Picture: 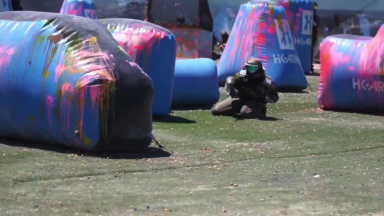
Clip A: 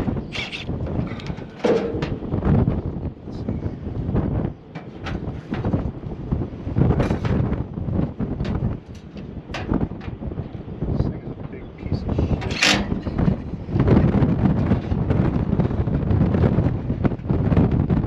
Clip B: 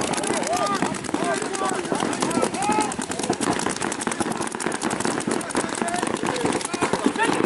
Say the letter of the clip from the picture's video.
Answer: B